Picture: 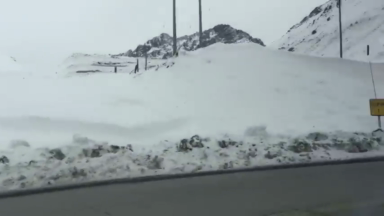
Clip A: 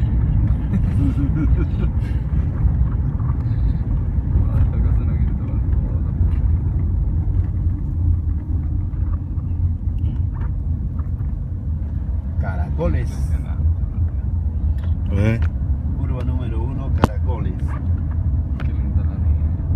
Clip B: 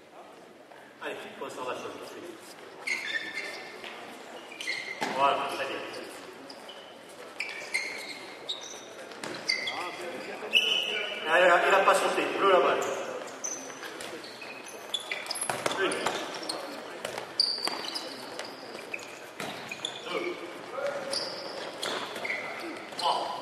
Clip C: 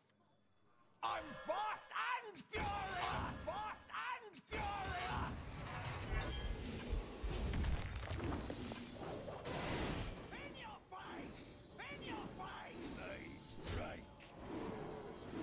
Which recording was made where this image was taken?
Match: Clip A